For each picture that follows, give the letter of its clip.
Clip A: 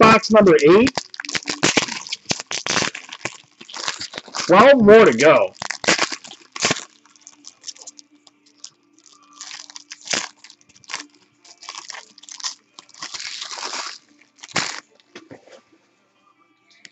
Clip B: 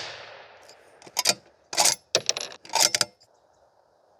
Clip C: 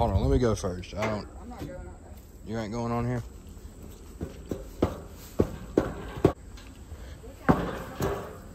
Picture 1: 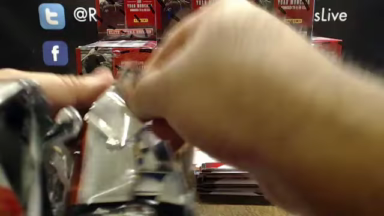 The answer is A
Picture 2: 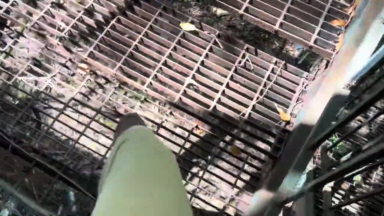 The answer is C